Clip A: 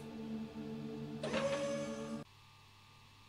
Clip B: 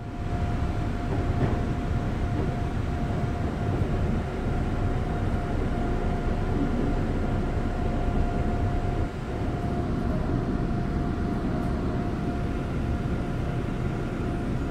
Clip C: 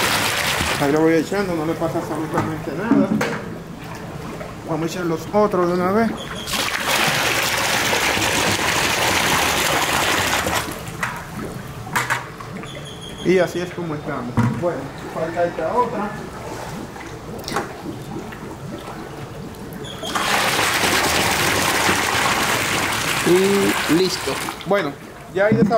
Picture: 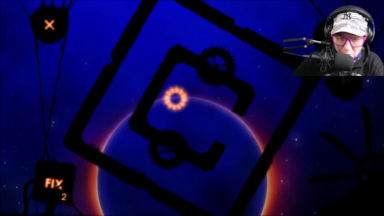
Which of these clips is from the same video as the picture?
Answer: A